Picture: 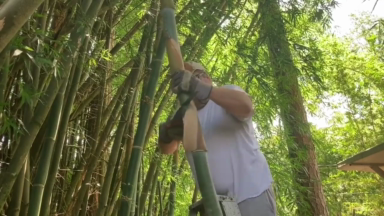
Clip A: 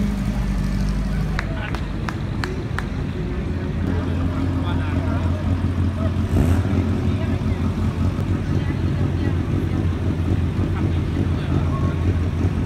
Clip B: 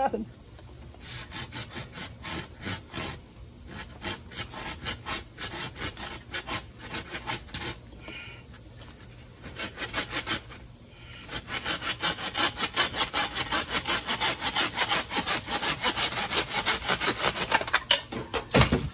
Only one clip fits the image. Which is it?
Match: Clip B